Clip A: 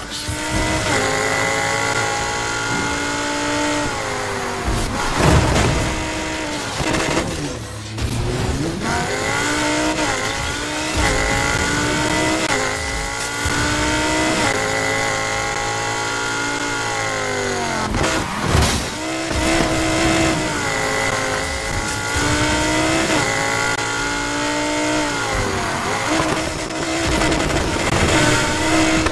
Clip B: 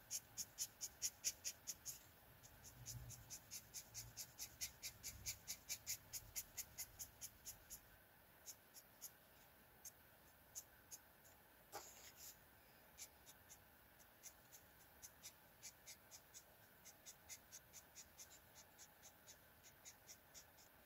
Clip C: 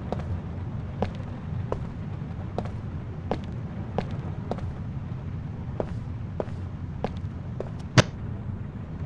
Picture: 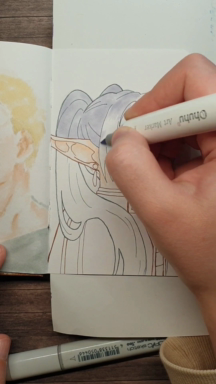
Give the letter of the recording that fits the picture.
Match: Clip B